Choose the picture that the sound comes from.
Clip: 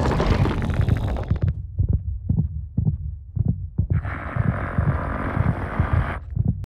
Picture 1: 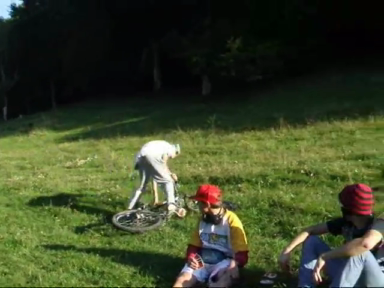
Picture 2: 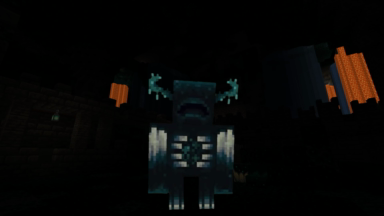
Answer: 2